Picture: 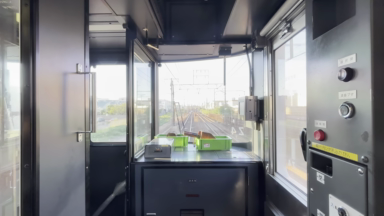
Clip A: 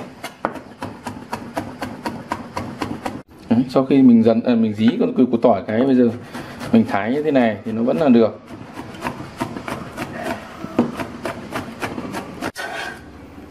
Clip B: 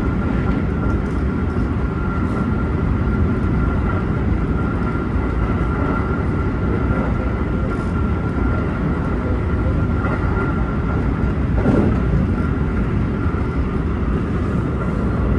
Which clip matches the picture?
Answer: B